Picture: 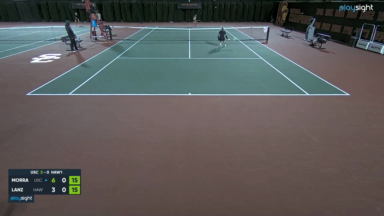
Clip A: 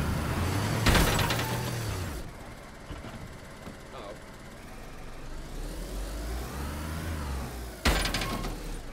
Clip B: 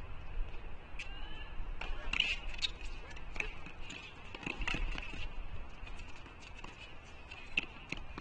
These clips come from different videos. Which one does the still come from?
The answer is B